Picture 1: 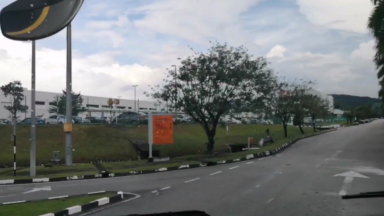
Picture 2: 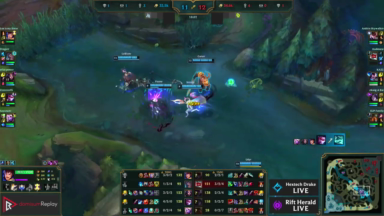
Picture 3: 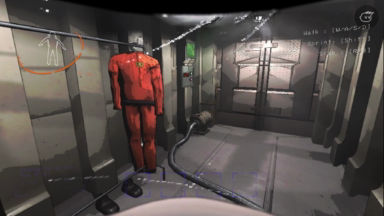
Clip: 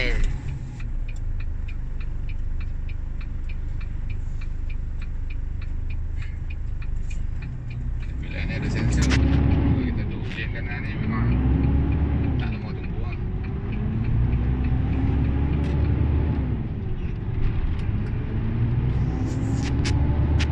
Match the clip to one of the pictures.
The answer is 1